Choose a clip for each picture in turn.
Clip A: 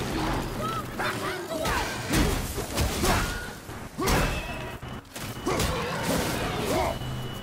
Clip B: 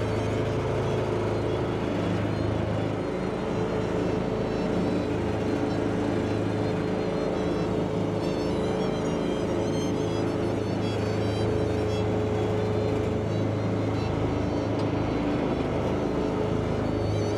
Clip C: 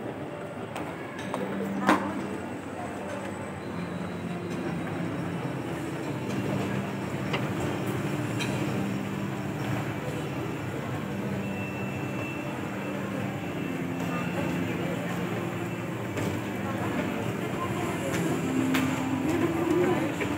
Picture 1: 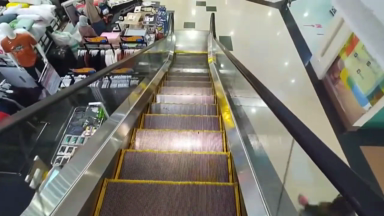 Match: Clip C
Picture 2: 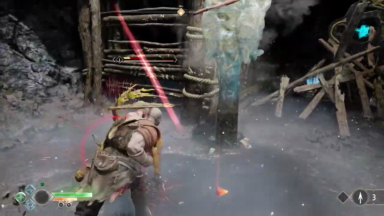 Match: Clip A